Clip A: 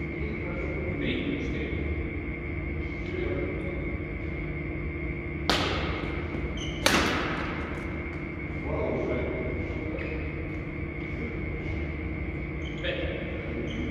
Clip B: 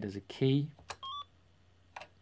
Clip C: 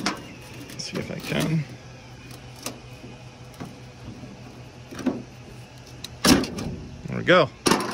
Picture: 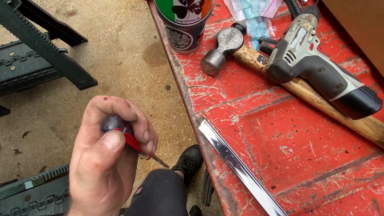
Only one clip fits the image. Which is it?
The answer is C